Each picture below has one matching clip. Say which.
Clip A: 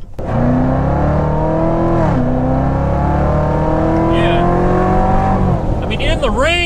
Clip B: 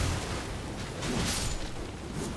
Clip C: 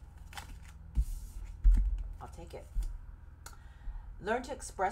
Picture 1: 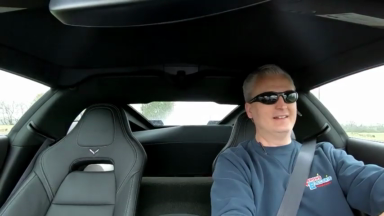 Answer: A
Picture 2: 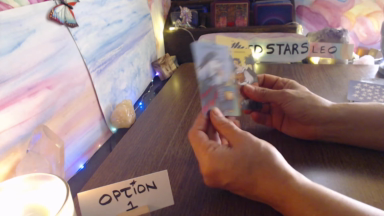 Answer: C